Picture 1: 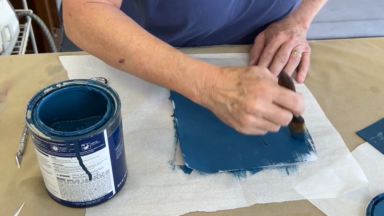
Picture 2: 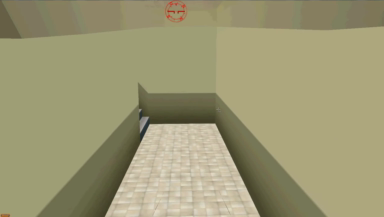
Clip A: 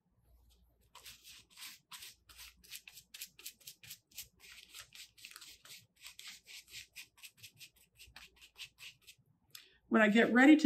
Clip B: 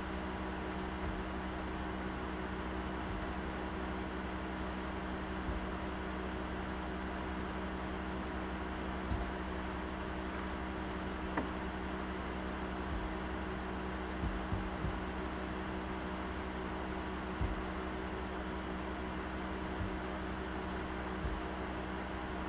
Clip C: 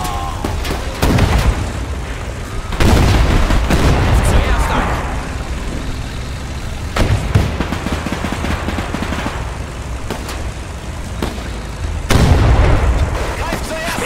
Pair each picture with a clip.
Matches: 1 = A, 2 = B